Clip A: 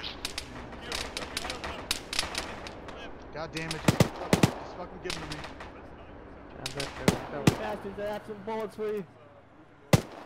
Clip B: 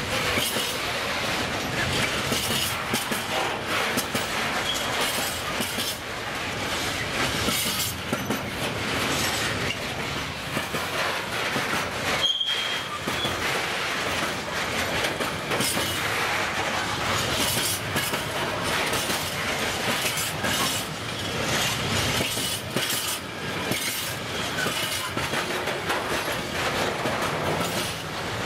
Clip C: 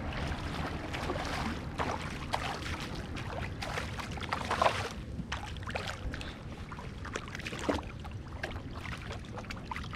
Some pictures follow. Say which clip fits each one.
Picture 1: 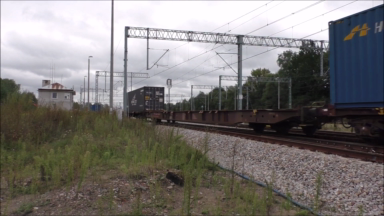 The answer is B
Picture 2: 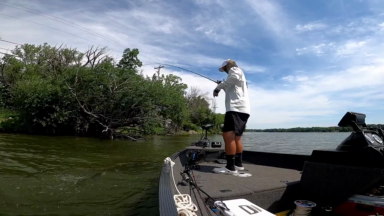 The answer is C